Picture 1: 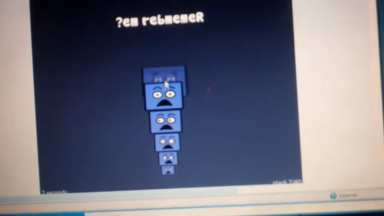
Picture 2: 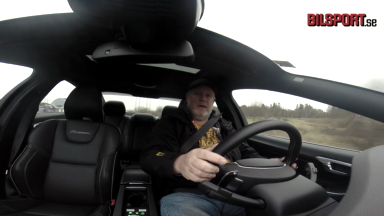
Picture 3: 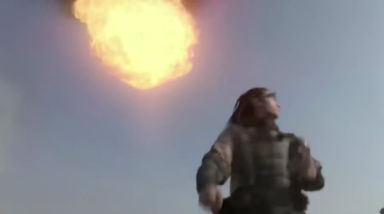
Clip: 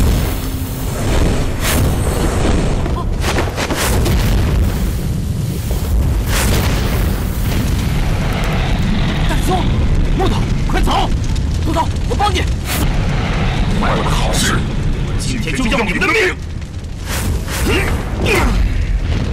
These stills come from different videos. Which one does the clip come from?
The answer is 3